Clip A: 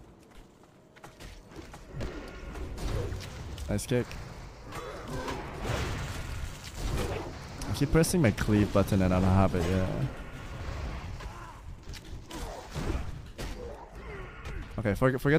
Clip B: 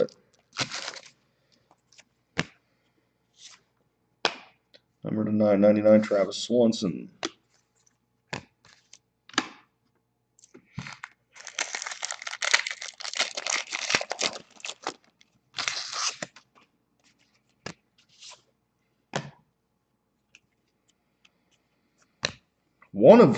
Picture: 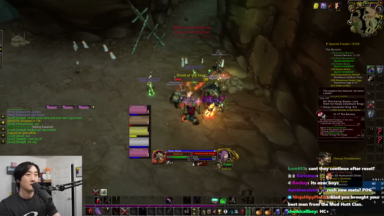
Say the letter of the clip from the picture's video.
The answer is A